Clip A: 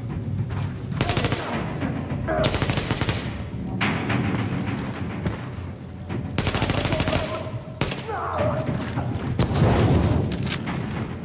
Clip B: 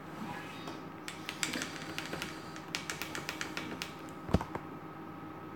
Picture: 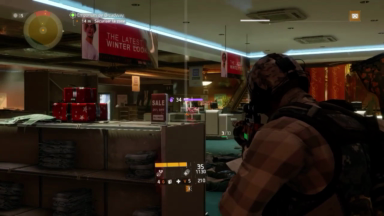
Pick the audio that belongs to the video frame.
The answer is A